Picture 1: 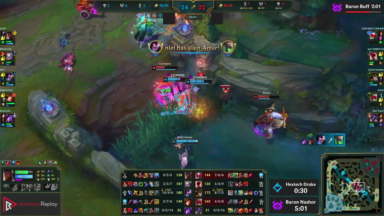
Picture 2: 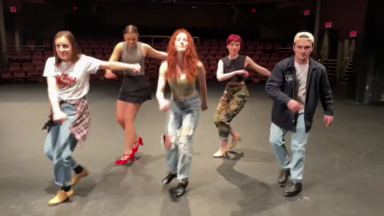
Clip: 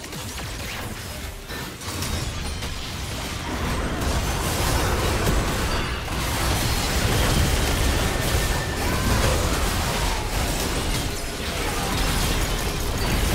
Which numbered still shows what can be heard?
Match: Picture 1